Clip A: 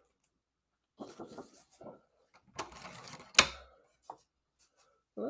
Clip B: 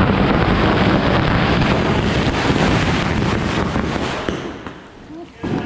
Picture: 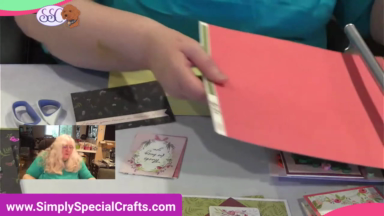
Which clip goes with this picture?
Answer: A